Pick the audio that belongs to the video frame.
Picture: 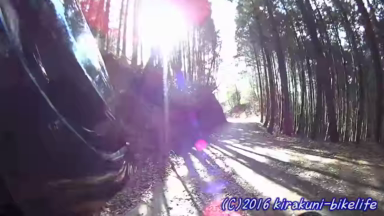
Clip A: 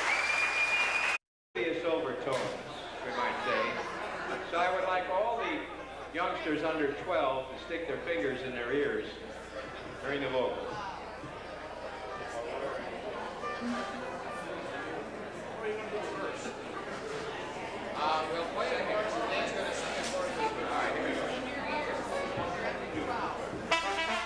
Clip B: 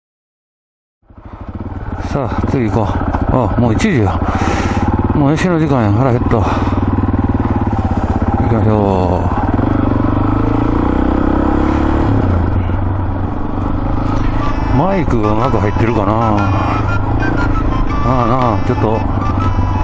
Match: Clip B